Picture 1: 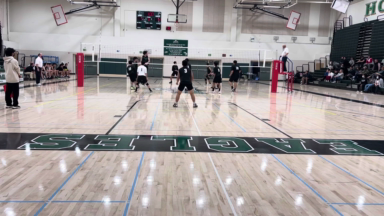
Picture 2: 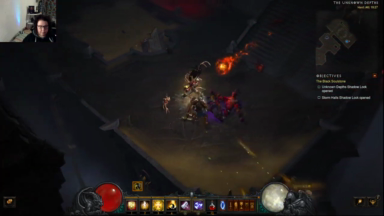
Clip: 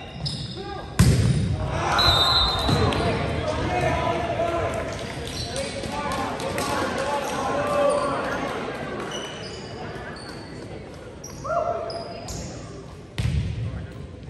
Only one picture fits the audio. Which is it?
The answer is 1